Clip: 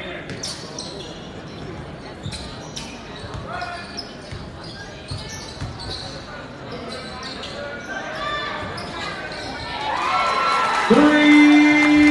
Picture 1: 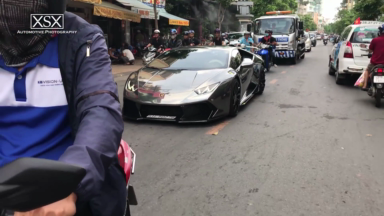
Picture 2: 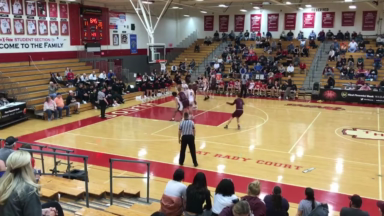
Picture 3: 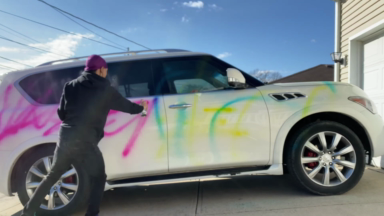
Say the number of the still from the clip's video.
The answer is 2